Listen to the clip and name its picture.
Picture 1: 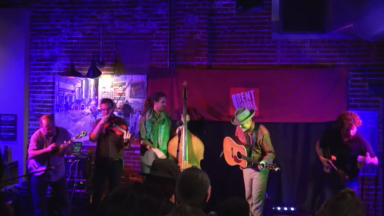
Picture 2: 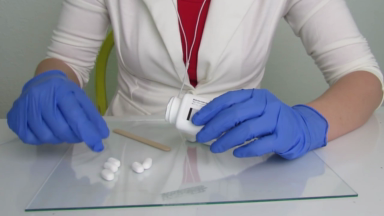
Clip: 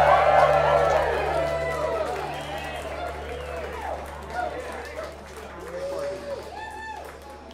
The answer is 1